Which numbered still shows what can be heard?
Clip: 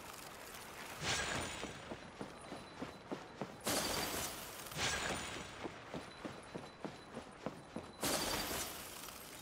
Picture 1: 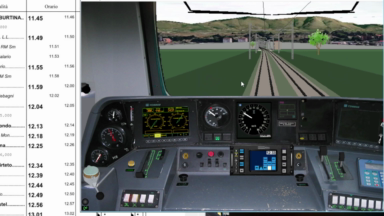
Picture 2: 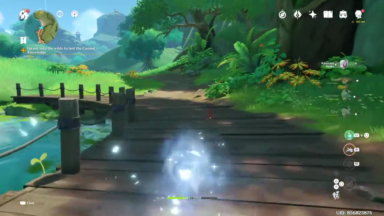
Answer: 2